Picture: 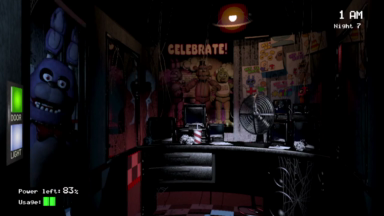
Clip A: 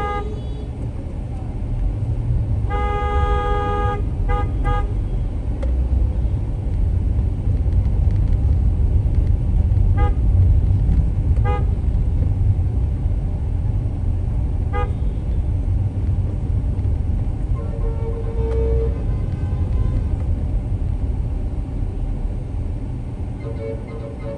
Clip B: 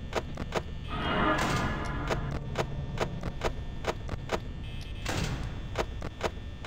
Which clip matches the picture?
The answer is B